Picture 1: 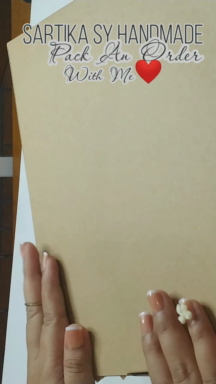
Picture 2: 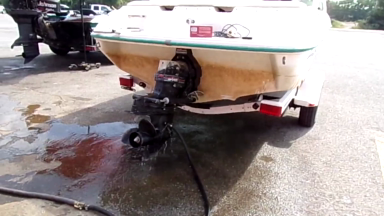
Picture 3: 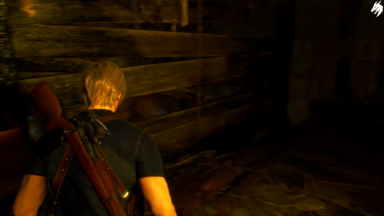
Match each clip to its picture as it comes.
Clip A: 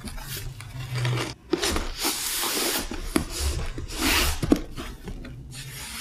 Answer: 1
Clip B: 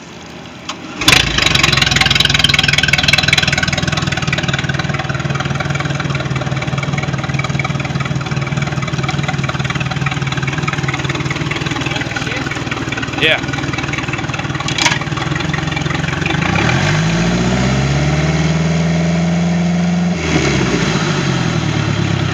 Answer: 2